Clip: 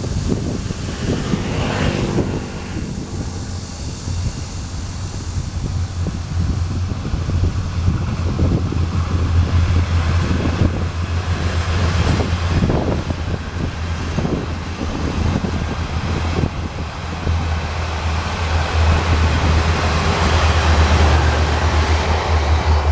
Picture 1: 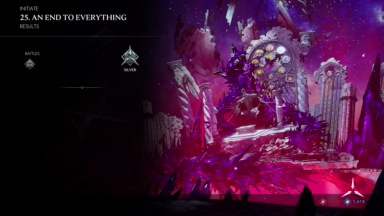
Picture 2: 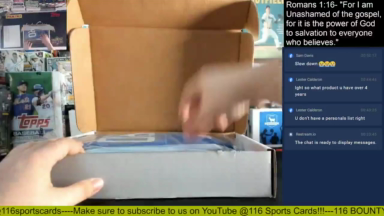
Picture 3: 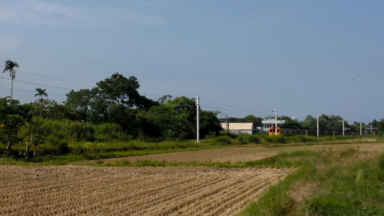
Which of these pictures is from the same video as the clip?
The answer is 3